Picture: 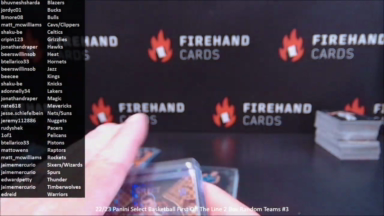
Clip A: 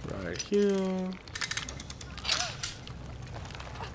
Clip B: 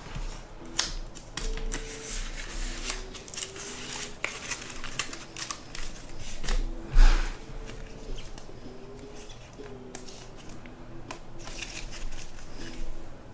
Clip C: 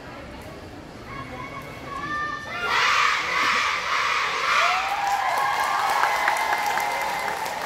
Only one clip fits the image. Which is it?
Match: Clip B